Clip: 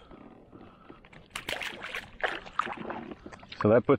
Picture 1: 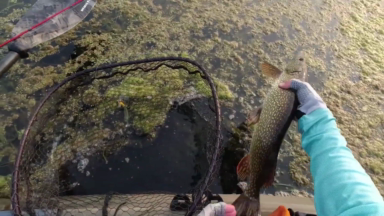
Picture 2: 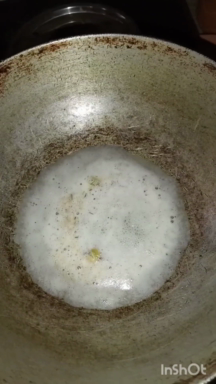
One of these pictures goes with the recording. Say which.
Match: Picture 1